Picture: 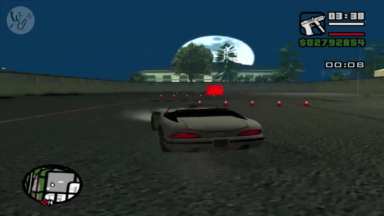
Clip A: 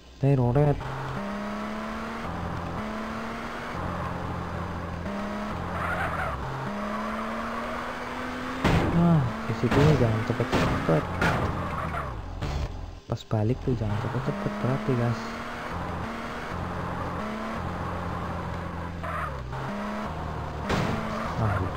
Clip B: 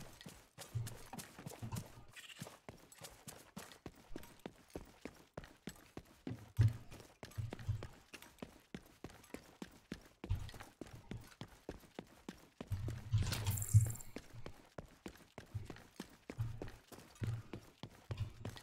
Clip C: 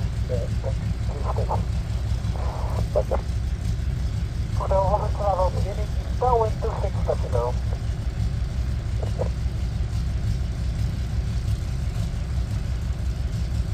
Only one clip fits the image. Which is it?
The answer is A